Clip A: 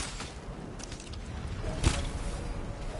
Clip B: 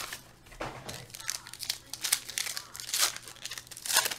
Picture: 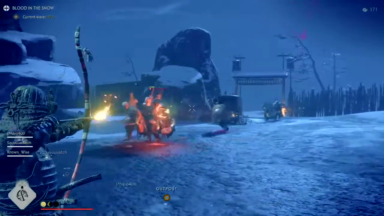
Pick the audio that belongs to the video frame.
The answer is A